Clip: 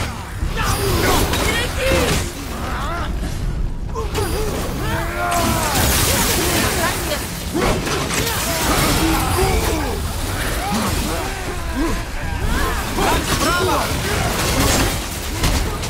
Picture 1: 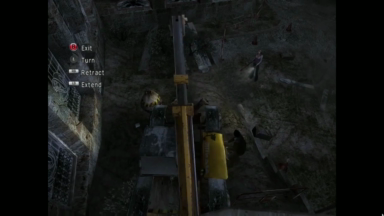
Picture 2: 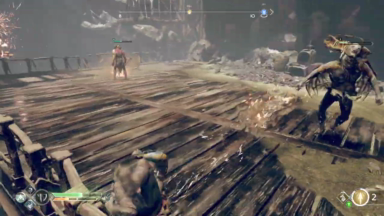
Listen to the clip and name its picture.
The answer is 2